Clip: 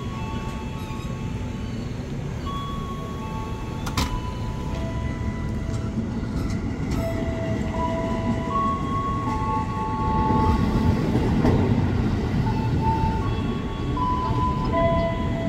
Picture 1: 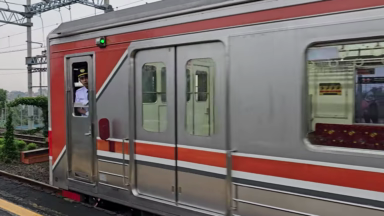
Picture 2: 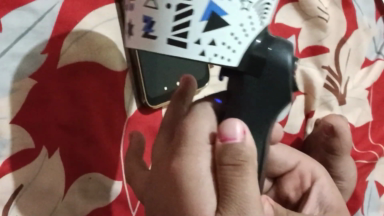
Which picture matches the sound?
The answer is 1